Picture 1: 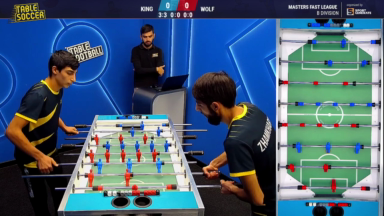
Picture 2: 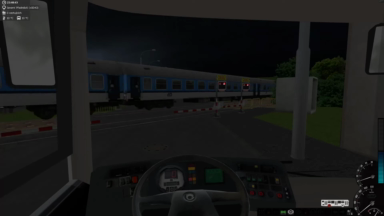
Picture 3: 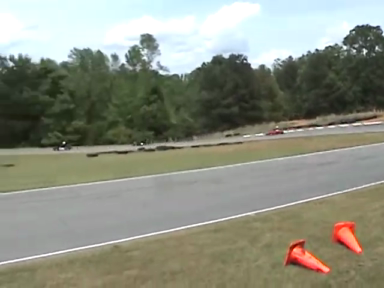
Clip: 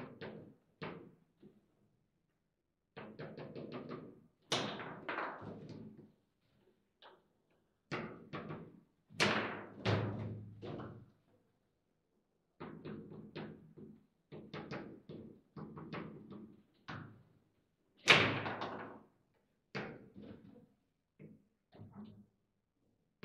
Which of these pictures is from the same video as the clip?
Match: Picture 1